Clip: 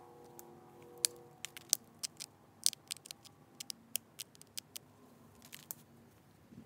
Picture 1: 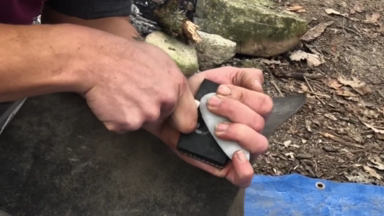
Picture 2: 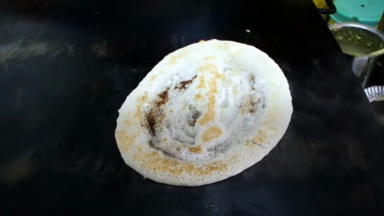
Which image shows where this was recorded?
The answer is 1